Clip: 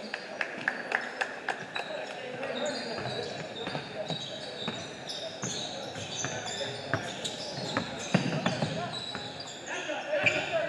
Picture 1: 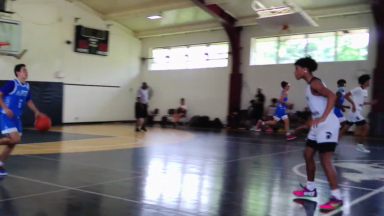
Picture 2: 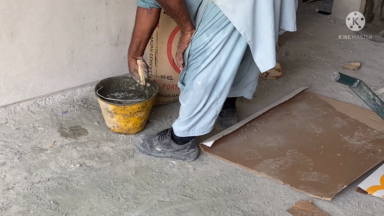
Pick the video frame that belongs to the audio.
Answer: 1